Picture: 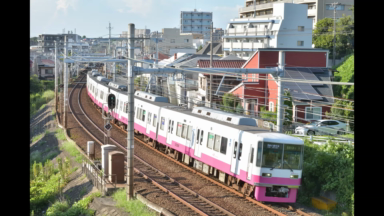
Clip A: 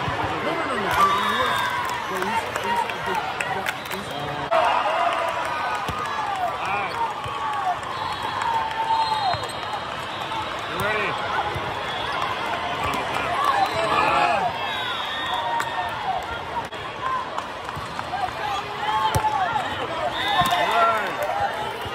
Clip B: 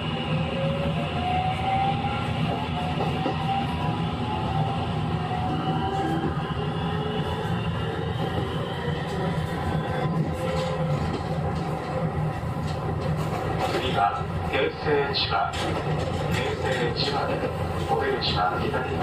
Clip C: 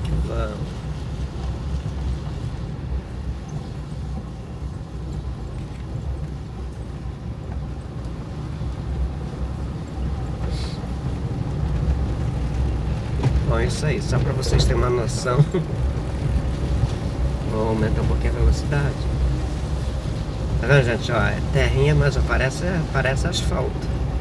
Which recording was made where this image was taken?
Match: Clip B